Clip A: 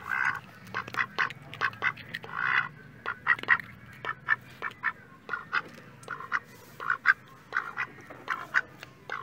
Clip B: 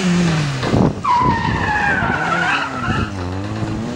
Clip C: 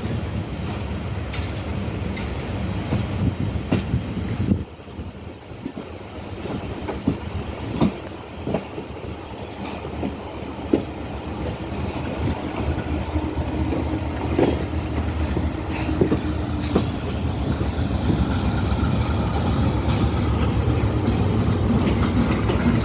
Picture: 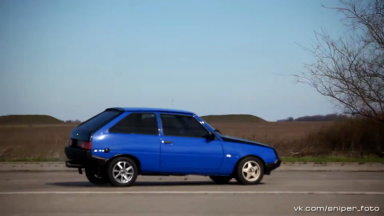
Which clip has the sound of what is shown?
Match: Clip B